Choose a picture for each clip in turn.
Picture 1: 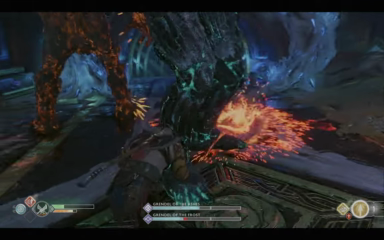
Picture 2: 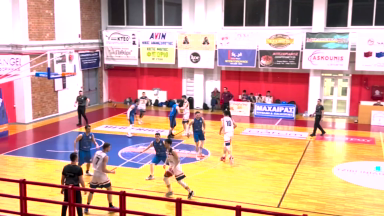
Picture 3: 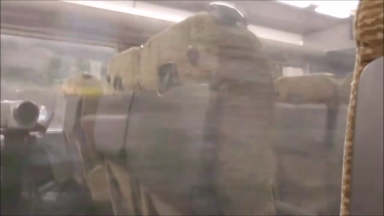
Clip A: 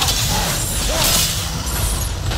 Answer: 1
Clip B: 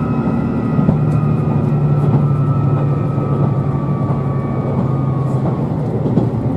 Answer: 3